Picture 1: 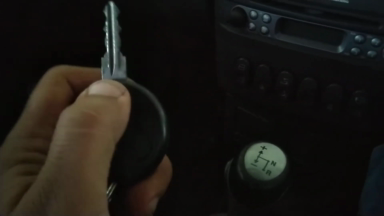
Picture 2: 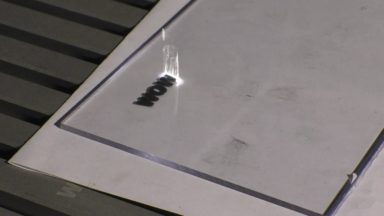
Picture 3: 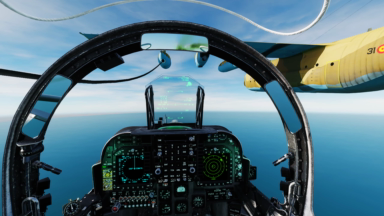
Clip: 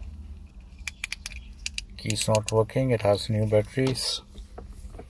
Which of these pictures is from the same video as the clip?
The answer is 1